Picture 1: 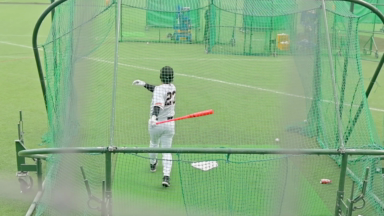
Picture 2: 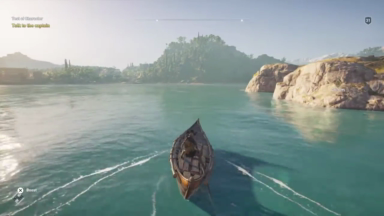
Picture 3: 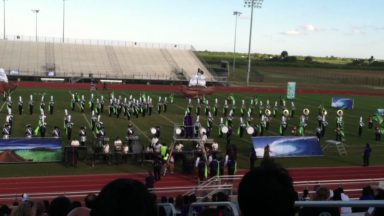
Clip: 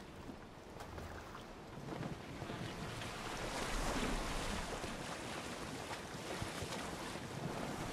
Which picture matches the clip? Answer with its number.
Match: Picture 2